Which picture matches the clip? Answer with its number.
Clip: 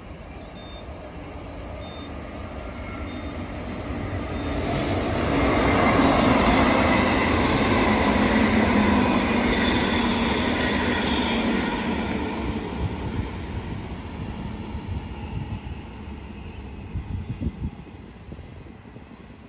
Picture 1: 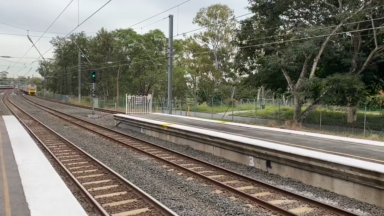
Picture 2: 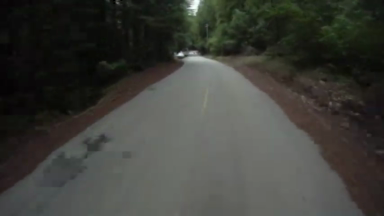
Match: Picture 1